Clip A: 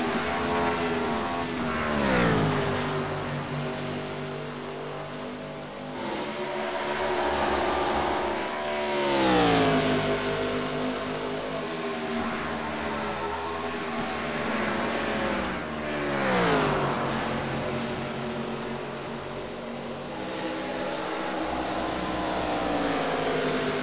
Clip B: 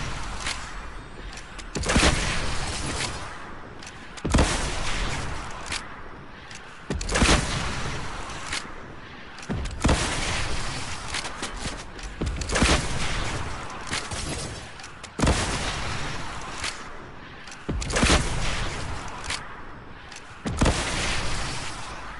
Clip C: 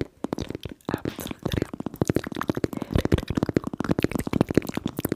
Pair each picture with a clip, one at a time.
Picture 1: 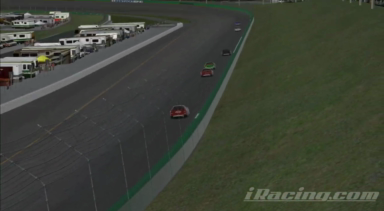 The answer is A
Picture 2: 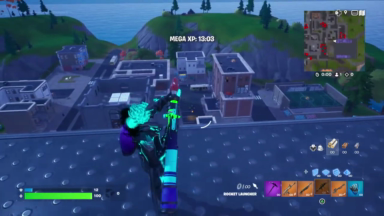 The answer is B